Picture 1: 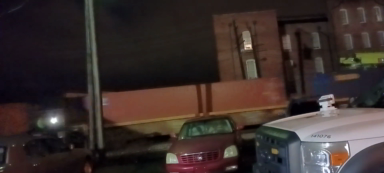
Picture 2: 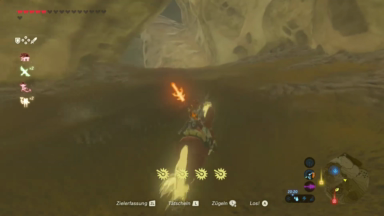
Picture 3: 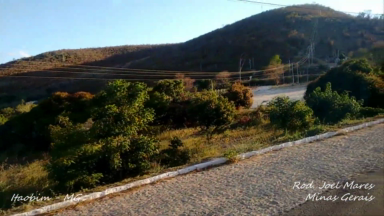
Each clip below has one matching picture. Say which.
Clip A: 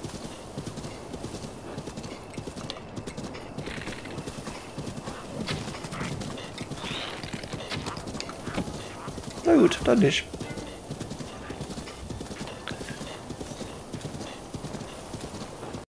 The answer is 2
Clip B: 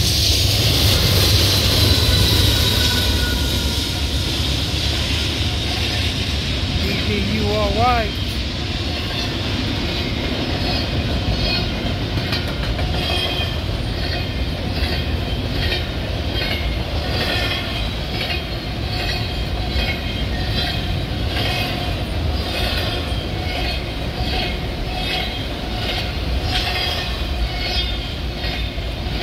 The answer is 1